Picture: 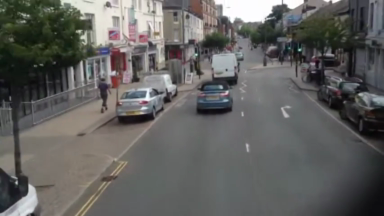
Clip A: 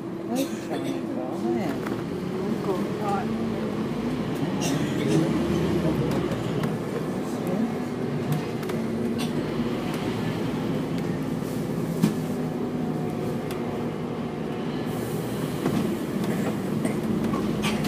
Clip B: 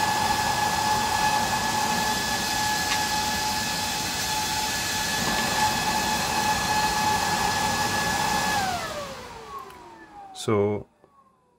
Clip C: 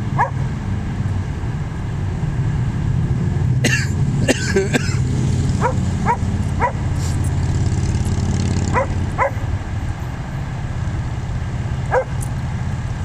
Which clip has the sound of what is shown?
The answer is A